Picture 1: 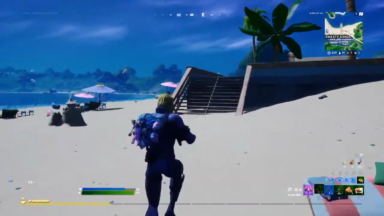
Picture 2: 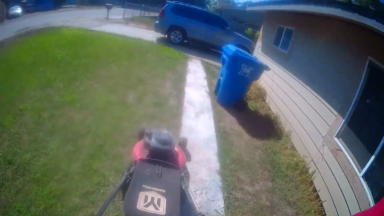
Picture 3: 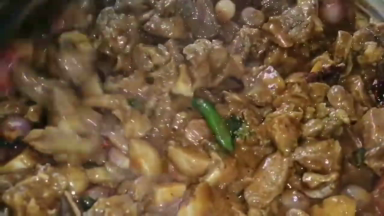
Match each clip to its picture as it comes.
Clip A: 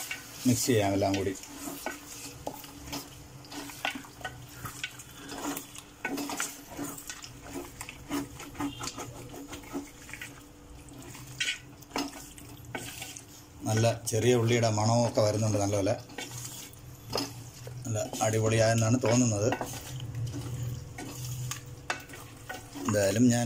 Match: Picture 3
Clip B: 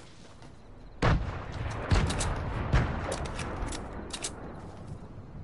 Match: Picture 1